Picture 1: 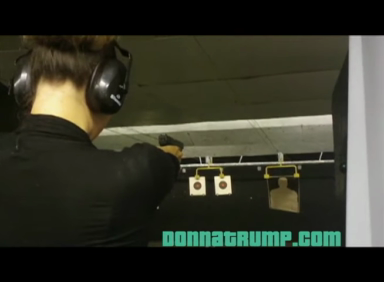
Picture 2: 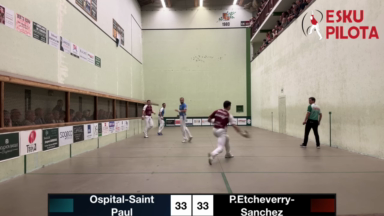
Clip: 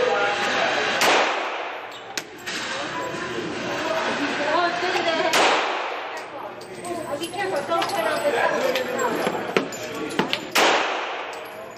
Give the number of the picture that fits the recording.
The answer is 1